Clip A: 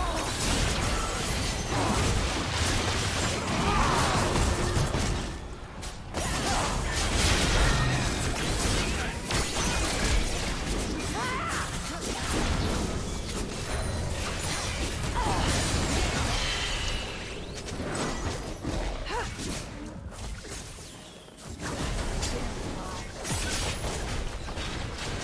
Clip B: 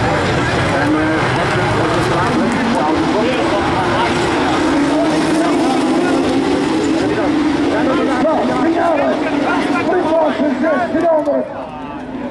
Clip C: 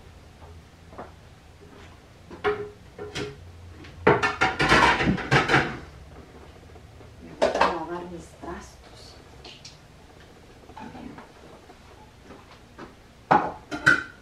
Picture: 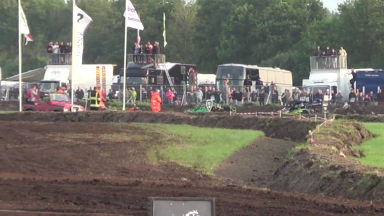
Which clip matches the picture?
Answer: B